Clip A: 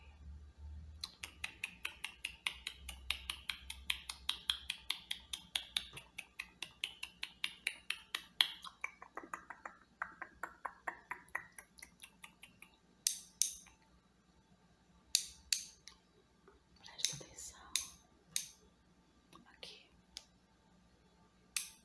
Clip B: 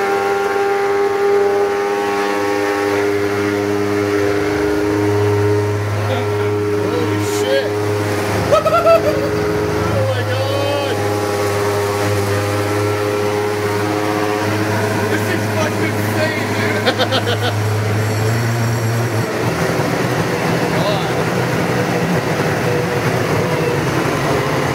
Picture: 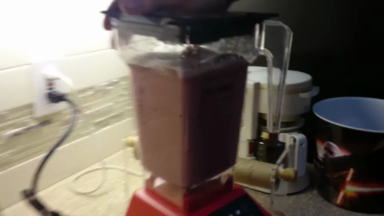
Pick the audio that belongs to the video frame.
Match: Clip B